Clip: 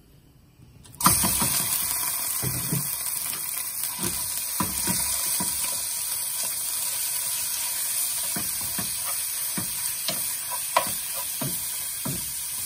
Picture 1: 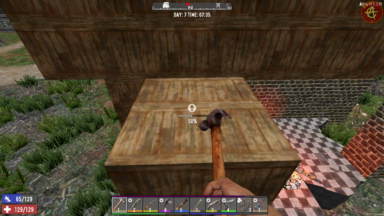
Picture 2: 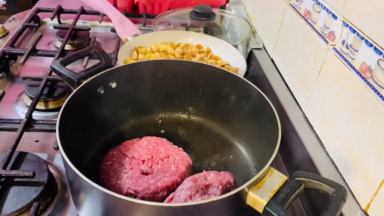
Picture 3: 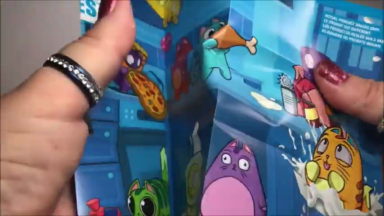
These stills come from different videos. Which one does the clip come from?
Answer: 2